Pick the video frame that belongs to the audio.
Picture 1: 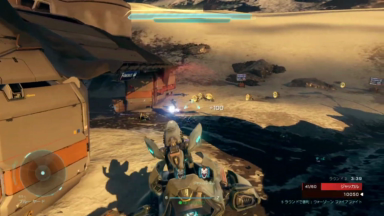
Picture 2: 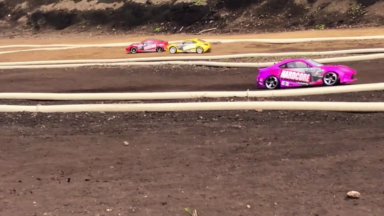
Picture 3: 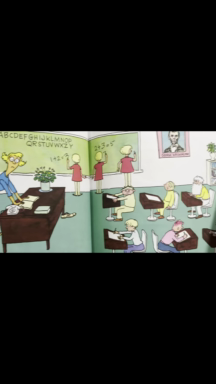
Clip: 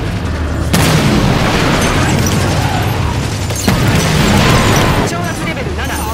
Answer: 1